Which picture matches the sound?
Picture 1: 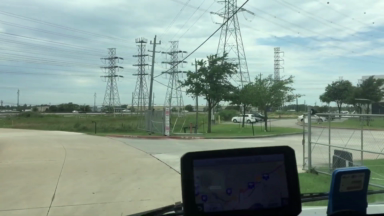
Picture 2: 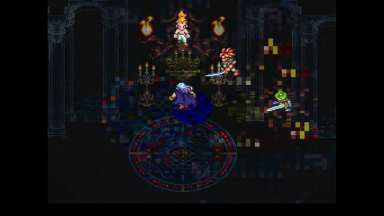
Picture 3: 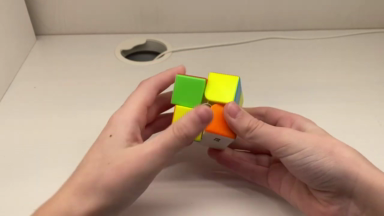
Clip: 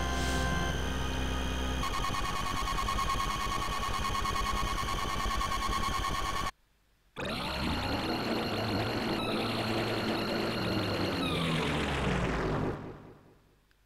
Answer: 2